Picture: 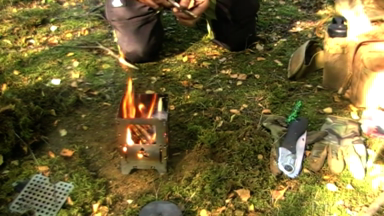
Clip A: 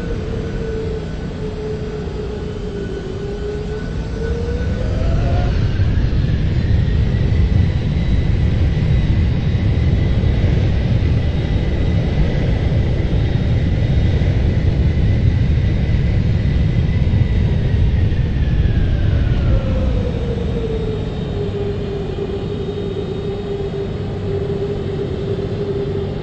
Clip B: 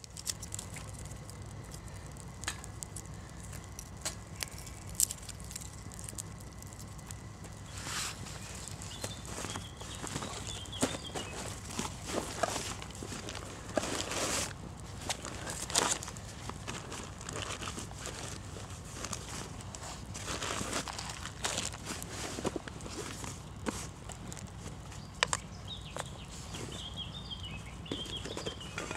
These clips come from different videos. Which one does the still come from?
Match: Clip B